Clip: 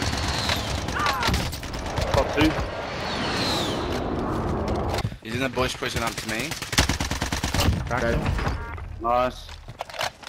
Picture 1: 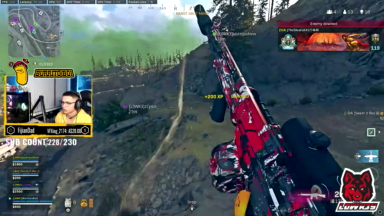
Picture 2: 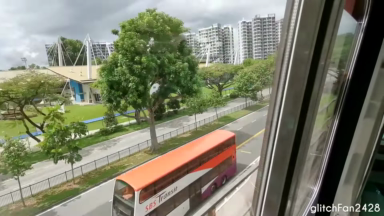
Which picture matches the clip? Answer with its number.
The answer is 1